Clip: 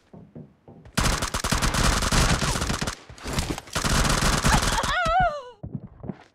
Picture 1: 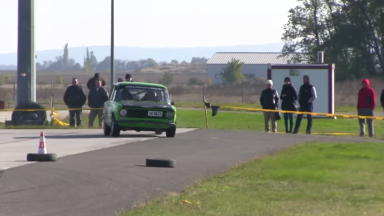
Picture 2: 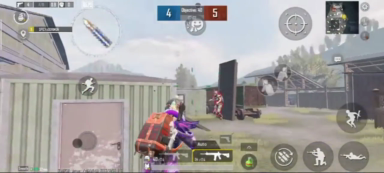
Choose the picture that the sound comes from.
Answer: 2